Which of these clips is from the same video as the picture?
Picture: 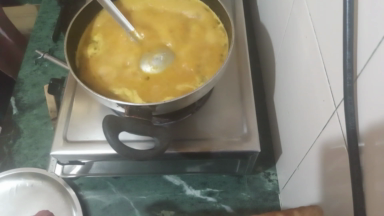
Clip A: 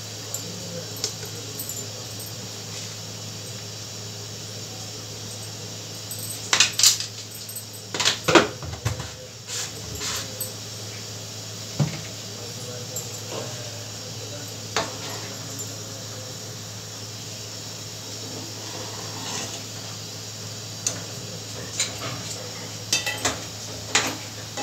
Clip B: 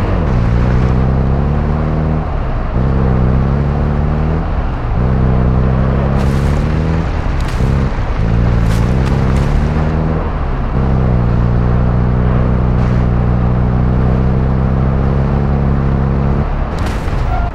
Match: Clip A